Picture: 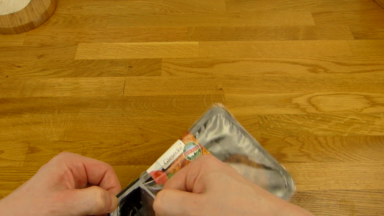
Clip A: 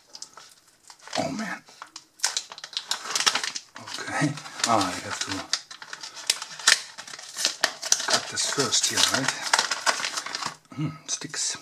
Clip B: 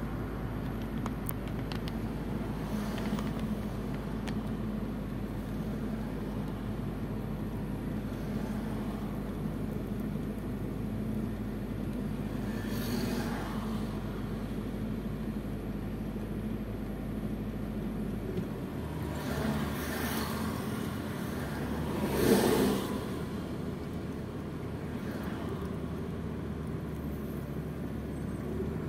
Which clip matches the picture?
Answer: A